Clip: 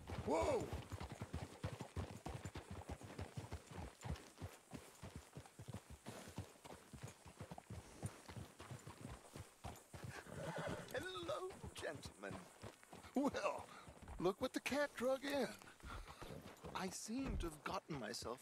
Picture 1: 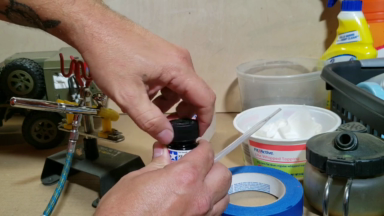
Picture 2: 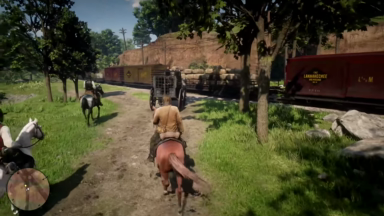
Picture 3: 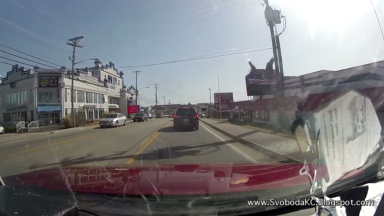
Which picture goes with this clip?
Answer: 2